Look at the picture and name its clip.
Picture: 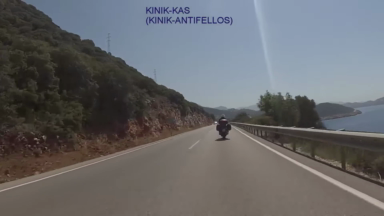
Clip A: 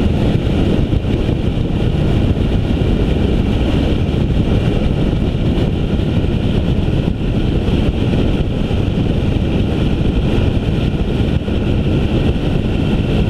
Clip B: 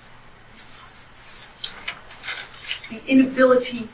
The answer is A